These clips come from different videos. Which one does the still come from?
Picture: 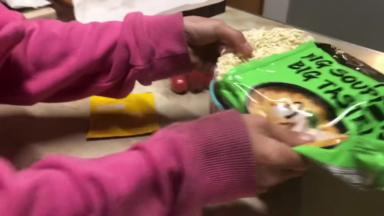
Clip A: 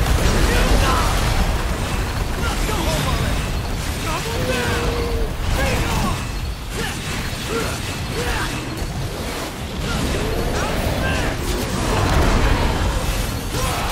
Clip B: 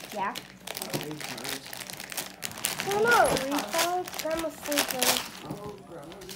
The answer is B